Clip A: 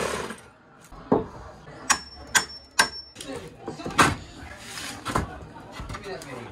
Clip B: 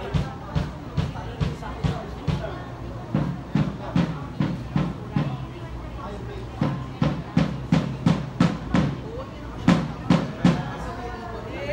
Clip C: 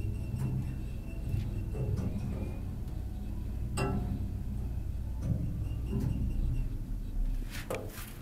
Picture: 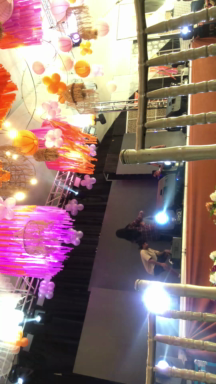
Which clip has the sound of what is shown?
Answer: B